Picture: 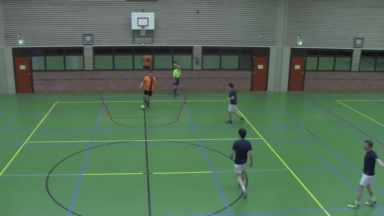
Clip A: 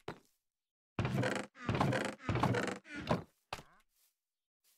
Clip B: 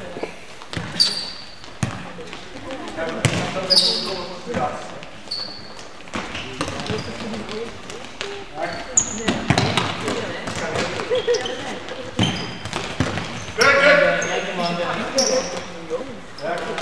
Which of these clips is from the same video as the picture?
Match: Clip B